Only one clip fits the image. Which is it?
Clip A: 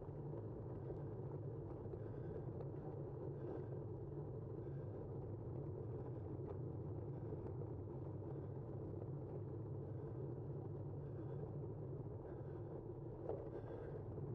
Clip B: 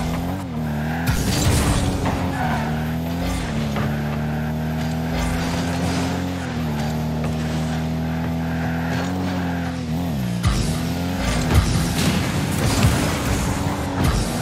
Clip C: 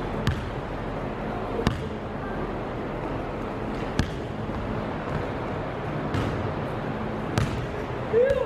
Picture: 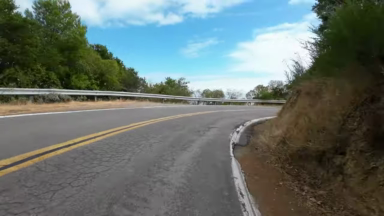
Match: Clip A